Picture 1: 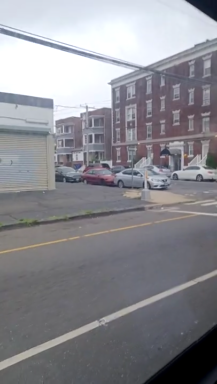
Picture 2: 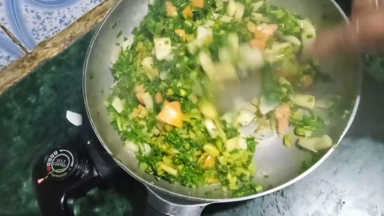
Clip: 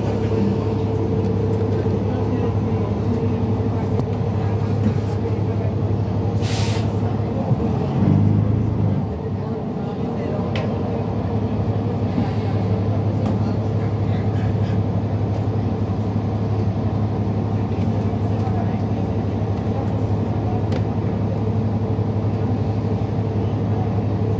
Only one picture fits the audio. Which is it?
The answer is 1